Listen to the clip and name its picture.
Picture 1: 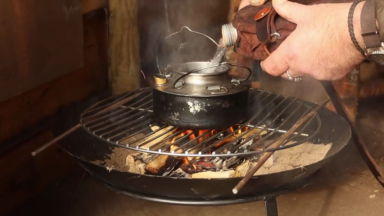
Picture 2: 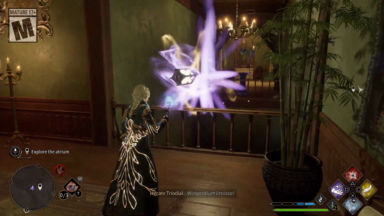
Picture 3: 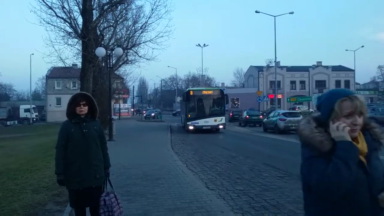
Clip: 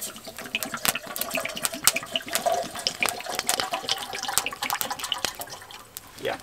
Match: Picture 1